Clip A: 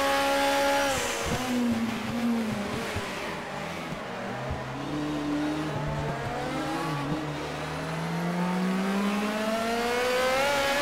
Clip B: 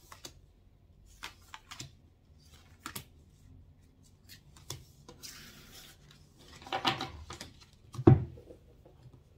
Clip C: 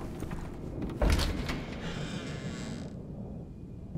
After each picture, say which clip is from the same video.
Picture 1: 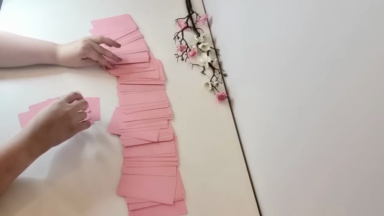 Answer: B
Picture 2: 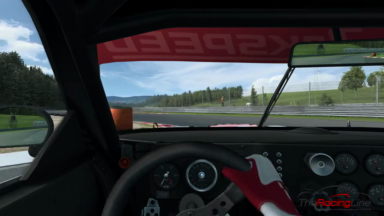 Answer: A